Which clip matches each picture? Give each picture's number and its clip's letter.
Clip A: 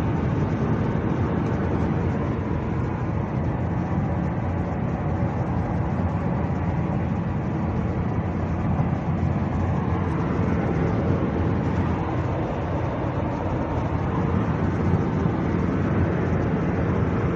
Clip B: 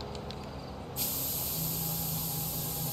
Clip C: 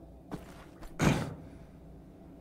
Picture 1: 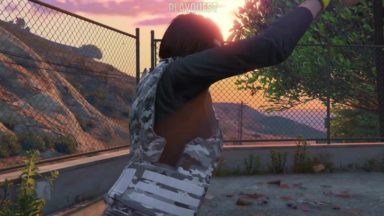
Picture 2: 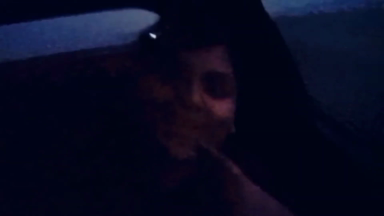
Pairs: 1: B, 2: A